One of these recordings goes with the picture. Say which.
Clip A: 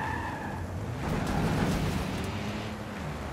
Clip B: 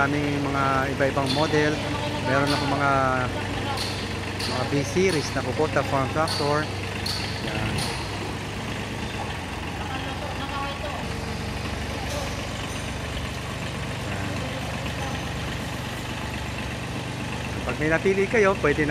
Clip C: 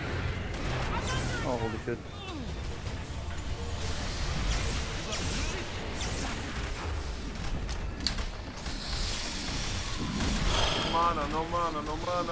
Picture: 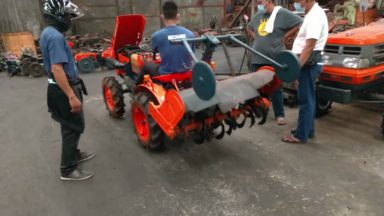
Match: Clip B